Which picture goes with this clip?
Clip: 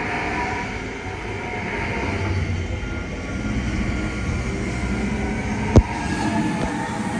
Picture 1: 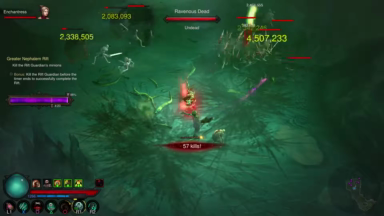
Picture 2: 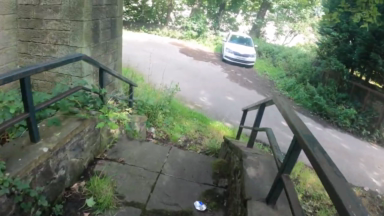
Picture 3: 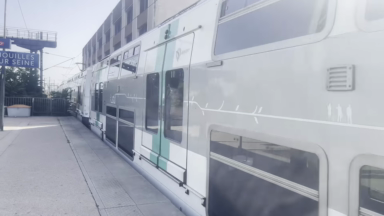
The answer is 3